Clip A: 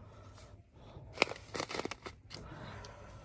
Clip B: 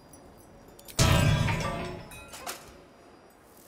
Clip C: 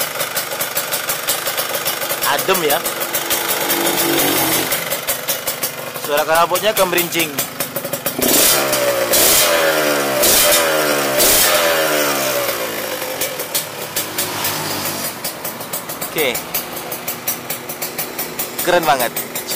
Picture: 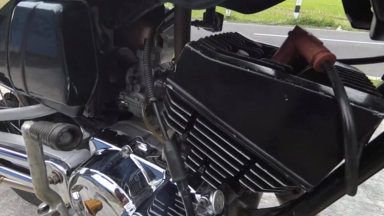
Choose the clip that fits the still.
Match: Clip C